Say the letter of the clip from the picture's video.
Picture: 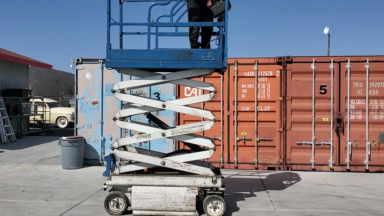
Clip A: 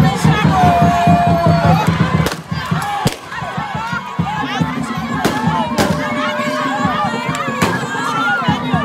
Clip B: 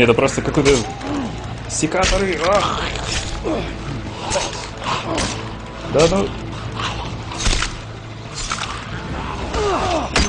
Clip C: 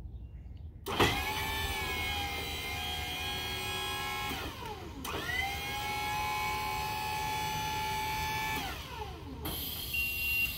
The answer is C